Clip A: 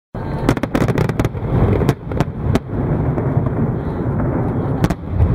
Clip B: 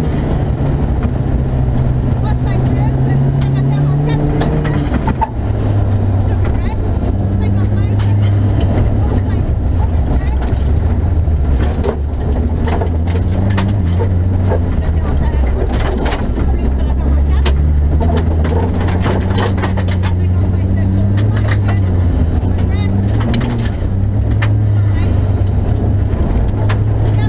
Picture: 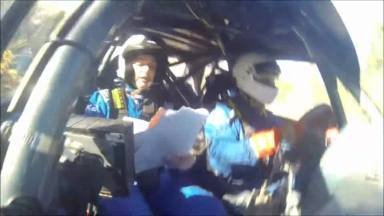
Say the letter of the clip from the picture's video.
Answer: B